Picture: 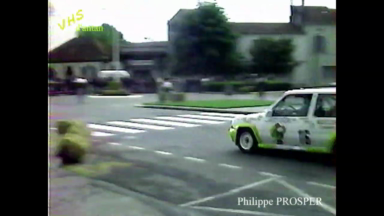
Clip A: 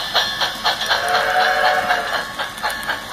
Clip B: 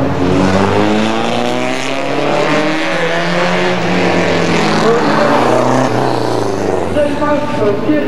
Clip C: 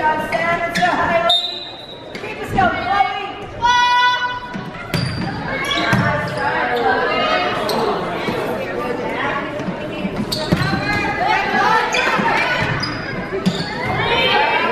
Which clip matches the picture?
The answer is B